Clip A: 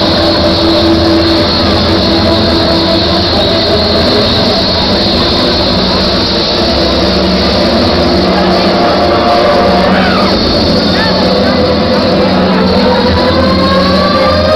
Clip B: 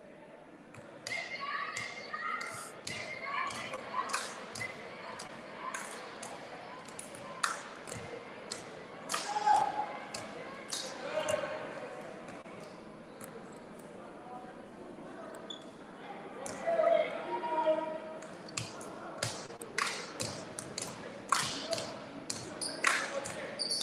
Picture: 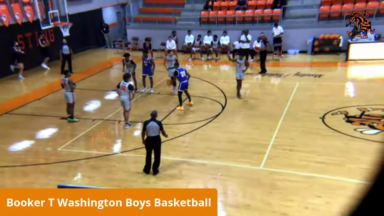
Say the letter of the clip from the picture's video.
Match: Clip B